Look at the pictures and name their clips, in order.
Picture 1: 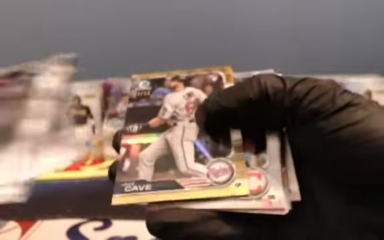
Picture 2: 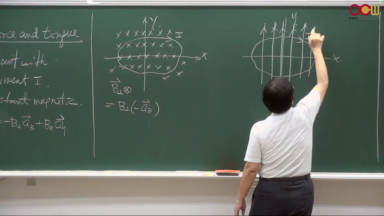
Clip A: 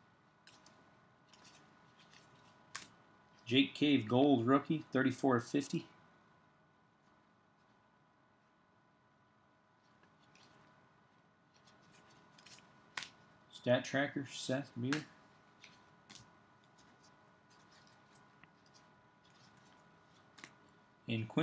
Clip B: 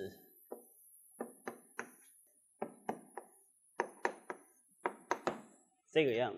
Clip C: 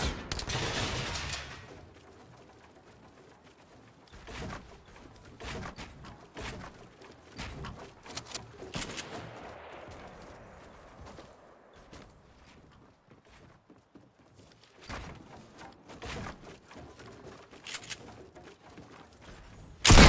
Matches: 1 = A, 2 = B